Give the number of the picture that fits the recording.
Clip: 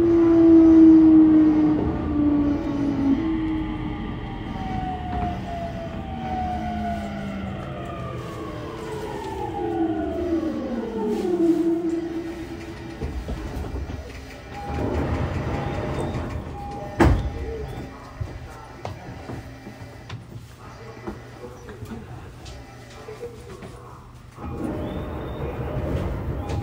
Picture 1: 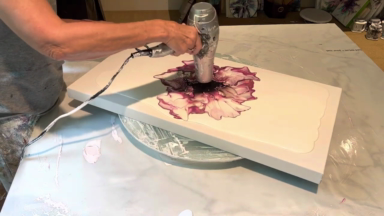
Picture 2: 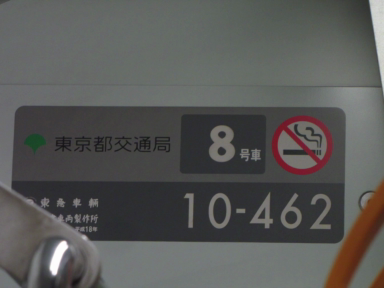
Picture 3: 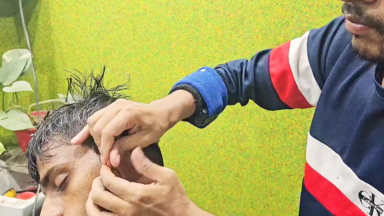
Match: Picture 2